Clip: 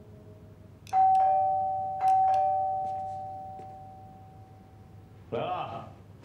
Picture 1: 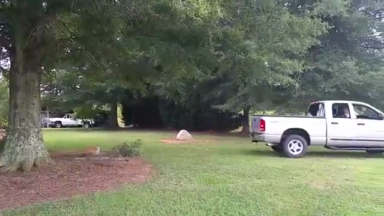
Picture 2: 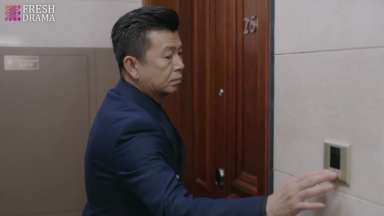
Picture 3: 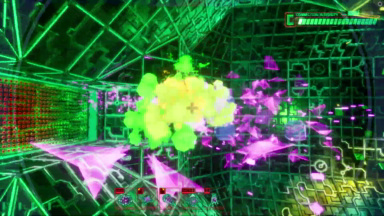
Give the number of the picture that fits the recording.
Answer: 2